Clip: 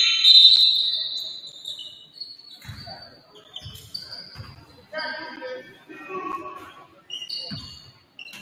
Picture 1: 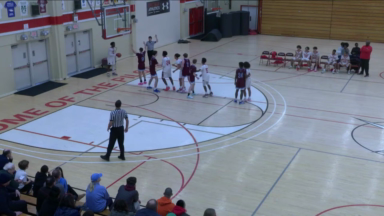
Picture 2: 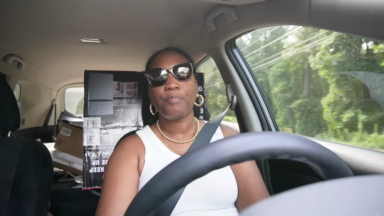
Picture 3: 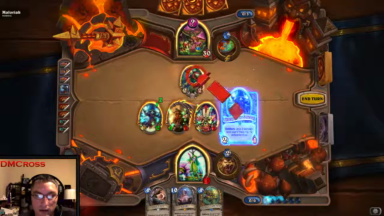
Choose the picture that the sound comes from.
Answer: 1